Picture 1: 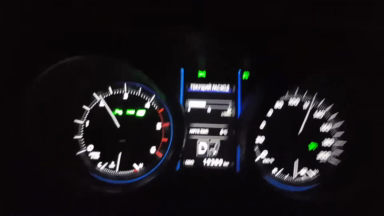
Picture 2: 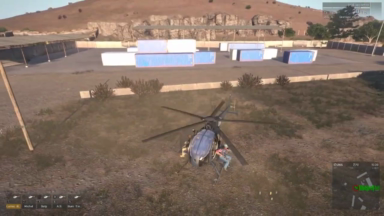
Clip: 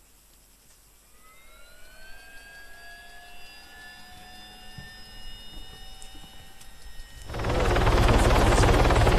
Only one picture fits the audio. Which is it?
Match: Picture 2